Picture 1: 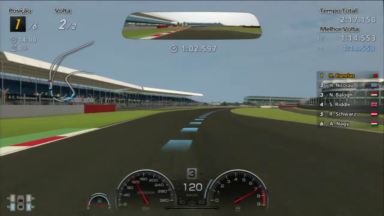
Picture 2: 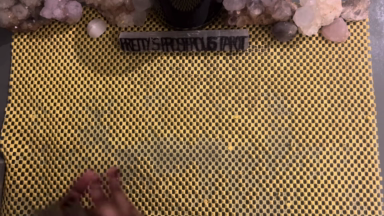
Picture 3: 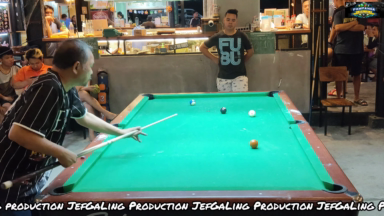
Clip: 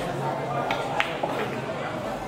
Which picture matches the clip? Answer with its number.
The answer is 3